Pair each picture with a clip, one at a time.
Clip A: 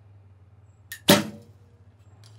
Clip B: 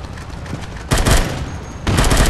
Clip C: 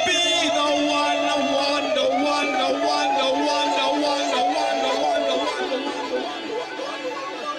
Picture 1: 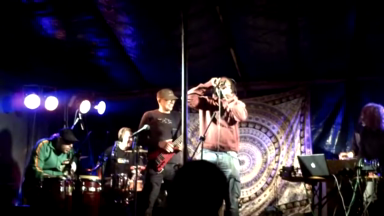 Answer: C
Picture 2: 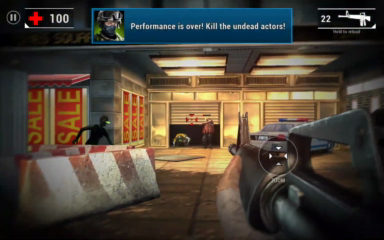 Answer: B